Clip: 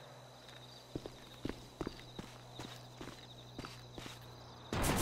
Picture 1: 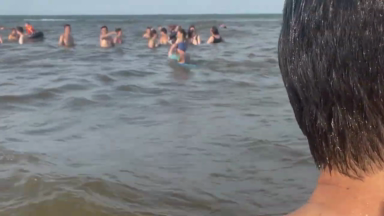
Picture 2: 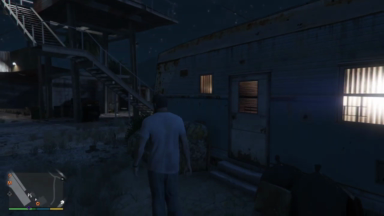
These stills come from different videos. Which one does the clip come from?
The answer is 2